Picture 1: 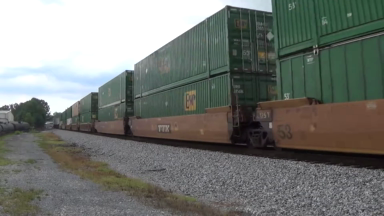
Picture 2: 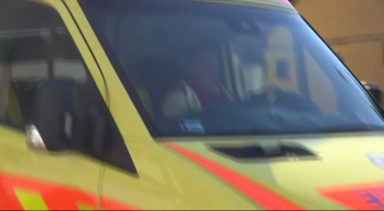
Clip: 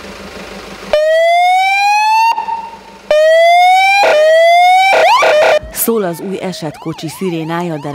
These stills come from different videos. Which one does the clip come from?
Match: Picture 2